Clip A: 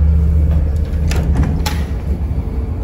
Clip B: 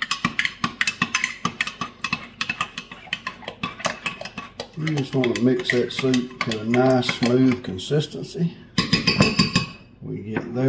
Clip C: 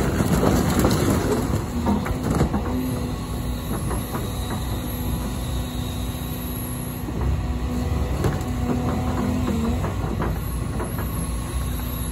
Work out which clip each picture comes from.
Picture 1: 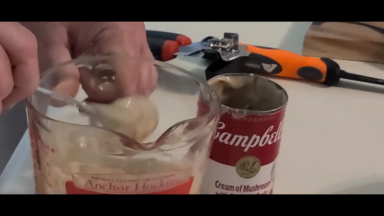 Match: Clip B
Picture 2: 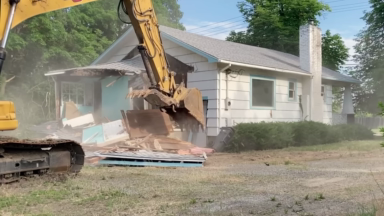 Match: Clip C